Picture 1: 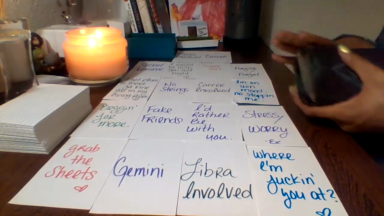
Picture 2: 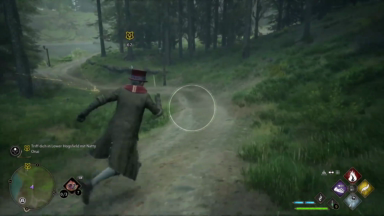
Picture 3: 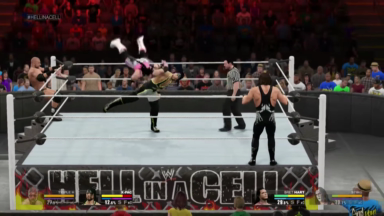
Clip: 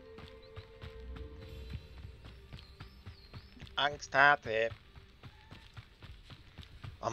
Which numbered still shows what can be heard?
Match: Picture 2